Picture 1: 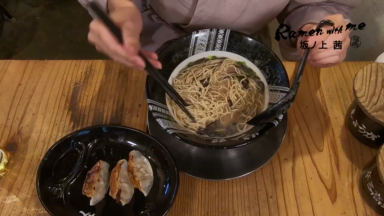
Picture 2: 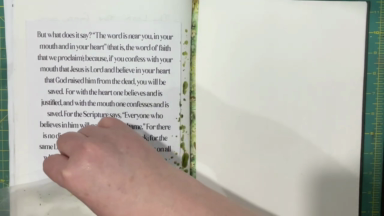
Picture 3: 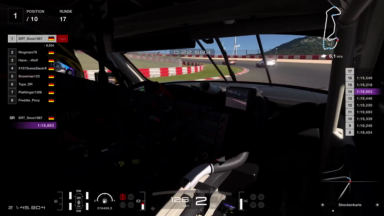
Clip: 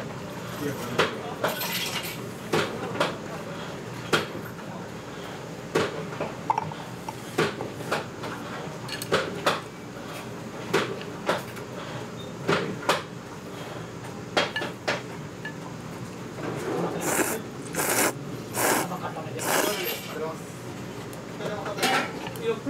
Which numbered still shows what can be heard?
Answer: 1